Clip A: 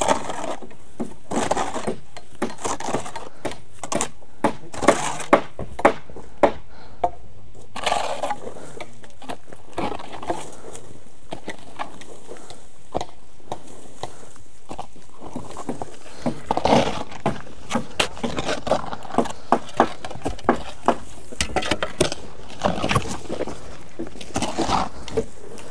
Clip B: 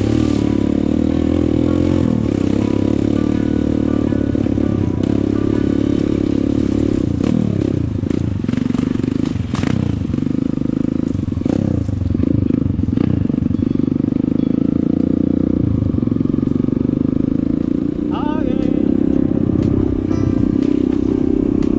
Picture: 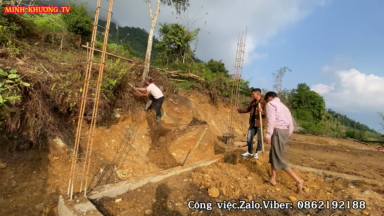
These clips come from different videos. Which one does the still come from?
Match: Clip A